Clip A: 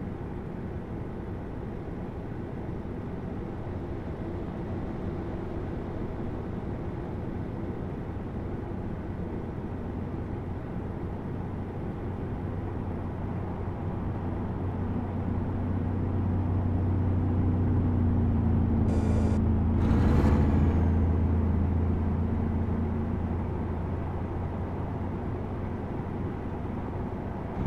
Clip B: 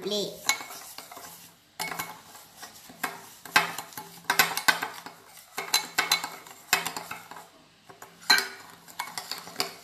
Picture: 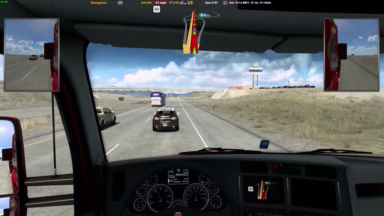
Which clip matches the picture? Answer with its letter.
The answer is A